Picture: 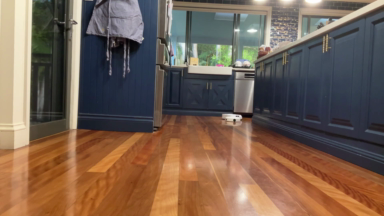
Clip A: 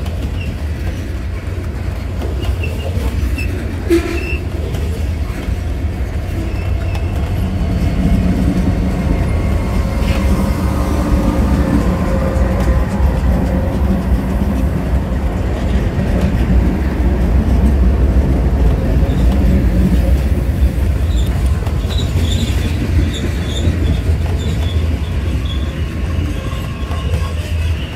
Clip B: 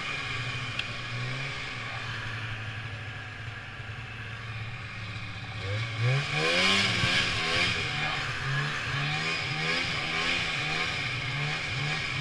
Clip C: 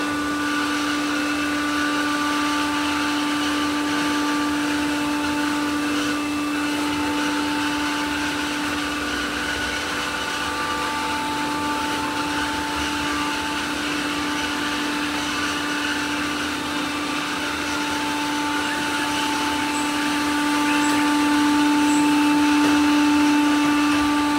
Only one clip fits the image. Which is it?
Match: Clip C